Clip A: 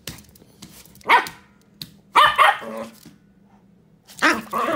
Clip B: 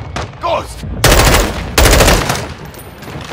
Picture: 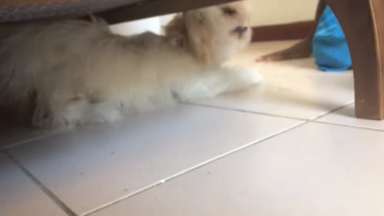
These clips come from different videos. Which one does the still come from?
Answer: A